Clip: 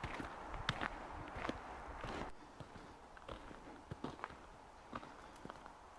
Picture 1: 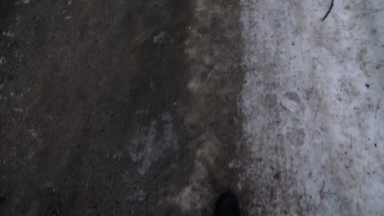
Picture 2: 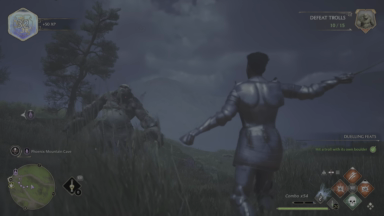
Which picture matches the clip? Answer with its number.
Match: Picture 1